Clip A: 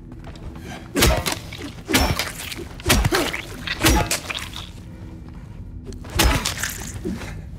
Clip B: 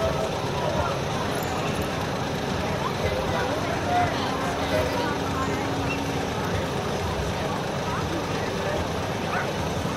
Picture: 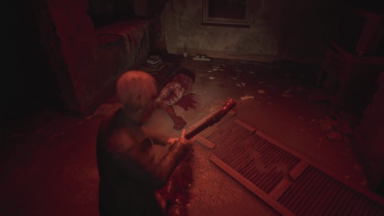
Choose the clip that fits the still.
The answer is A